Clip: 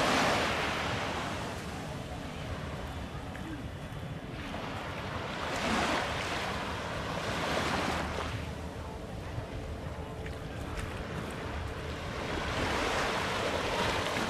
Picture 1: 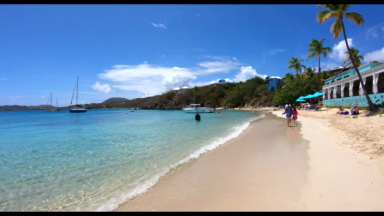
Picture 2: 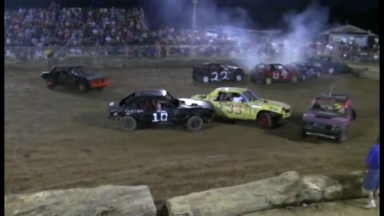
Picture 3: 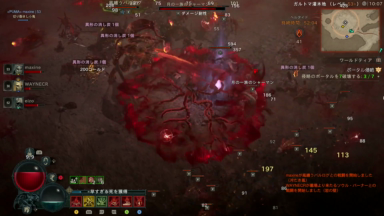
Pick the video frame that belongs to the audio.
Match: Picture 1